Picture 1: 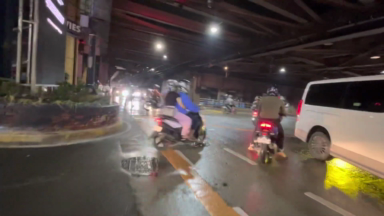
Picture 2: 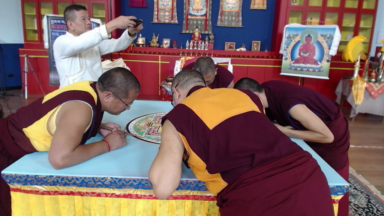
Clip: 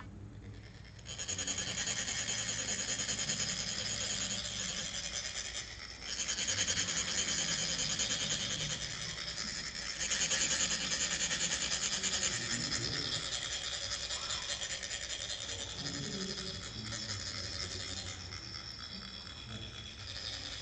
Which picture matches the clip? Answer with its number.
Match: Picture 2